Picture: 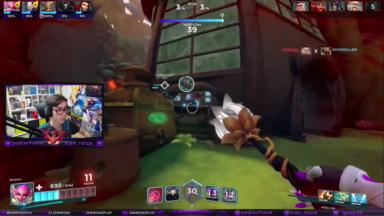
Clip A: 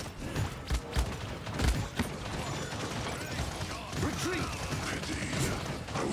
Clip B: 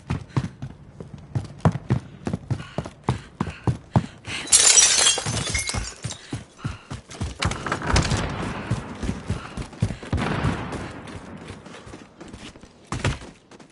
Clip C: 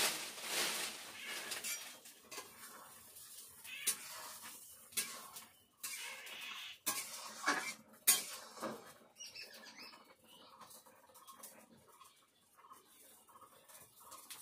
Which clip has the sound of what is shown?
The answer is A